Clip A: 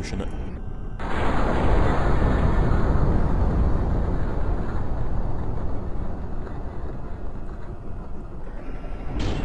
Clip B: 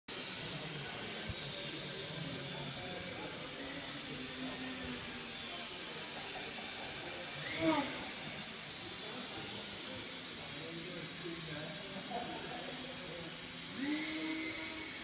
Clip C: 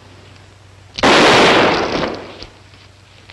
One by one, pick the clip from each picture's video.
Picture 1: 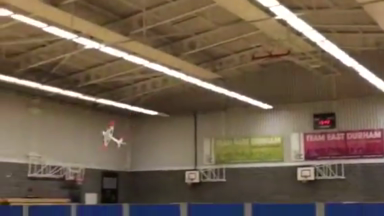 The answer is B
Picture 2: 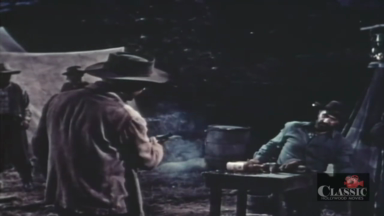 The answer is C